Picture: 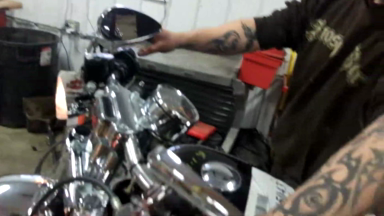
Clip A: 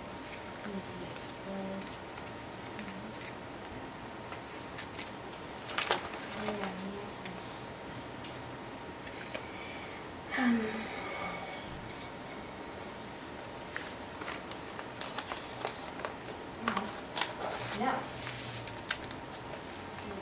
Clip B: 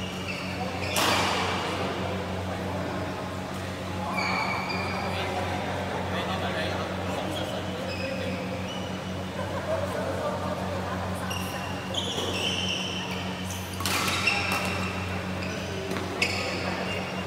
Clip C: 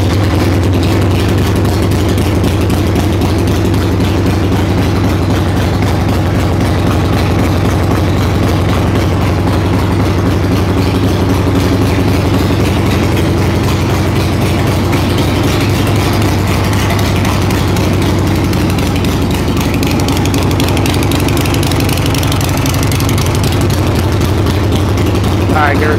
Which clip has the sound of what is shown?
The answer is C